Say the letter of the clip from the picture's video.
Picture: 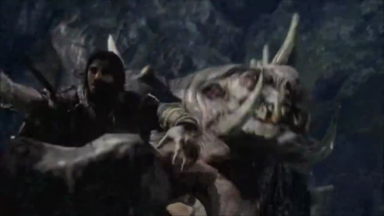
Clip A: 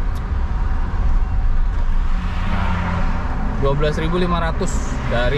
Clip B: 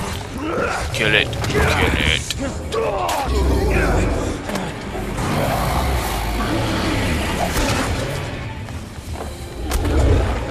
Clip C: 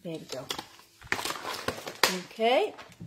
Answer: B